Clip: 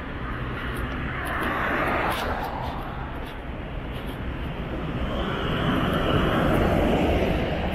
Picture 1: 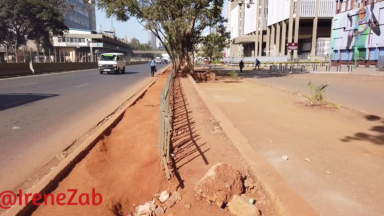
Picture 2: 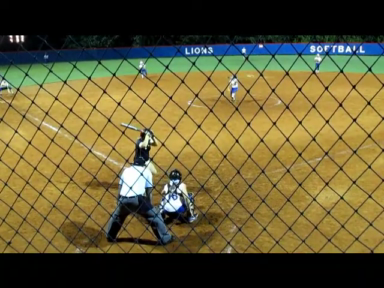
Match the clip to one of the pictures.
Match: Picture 1